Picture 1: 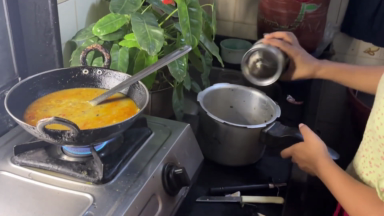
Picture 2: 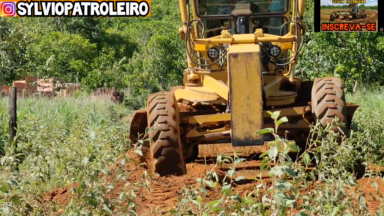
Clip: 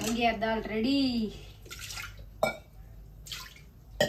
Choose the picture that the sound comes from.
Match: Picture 1